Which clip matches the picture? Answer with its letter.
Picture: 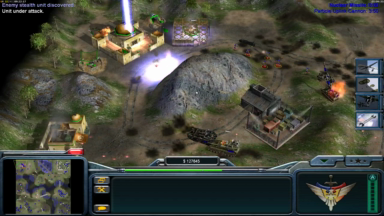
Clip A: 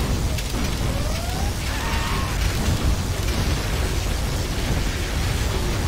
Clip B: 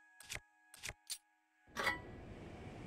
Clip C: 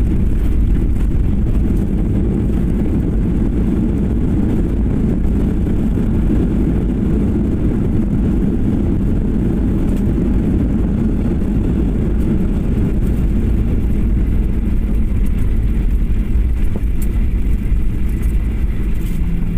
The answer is A